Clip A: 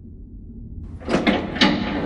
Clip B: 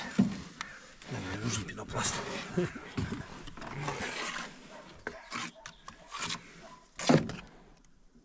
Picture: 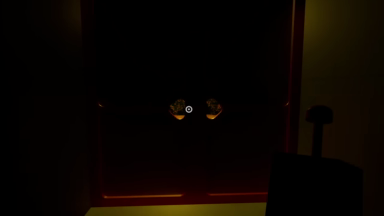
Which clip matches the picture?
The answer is A